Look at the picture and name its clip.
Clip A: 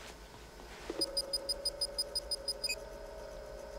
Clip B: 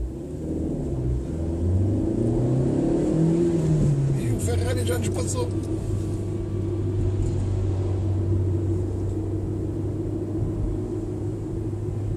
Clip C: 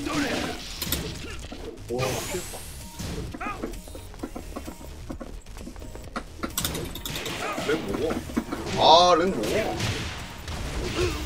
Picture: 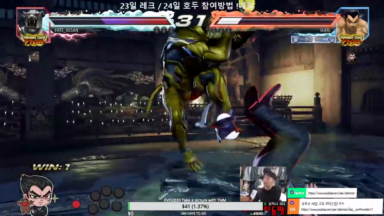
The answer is C